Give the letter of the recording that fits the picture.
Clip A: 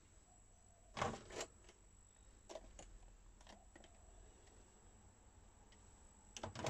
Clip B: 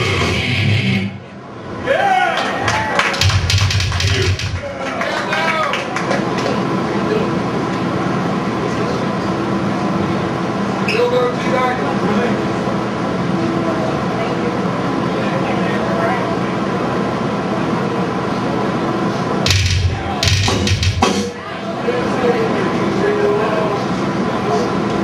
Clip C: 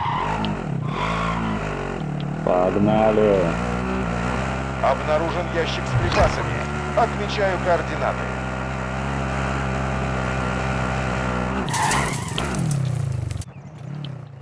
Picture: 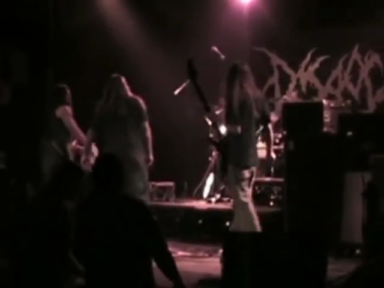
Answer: B